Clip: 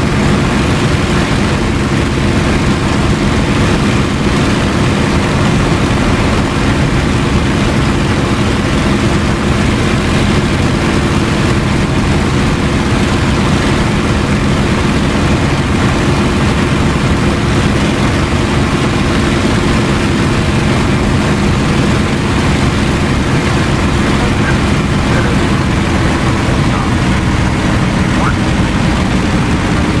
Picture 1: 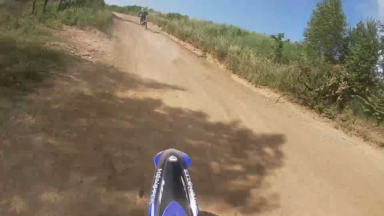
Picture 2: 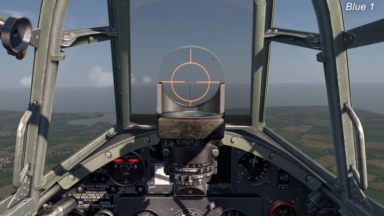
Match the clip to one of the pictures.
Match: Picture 2